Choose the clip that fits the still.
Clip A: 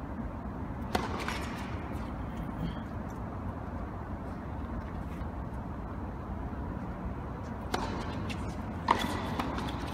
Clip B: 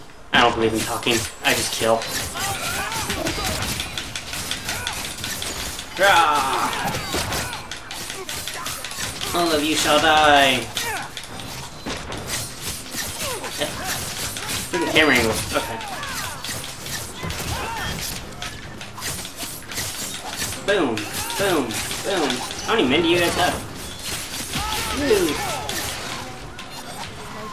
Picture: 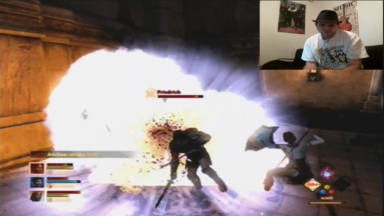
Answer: B